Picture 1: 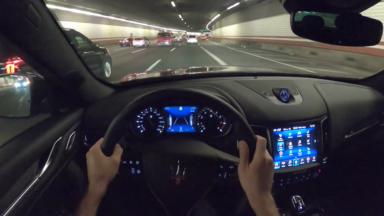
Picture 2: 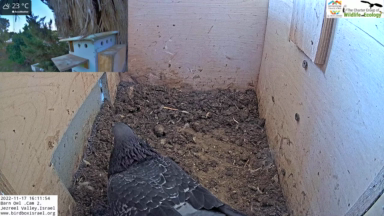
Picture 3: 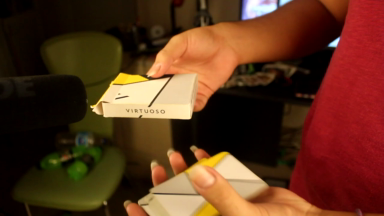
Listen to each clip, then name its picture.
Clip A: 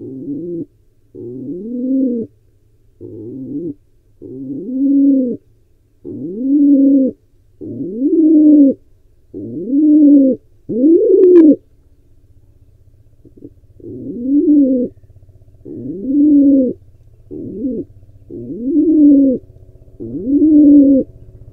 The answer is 2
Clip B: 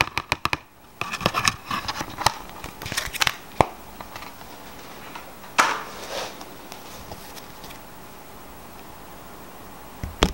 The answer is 3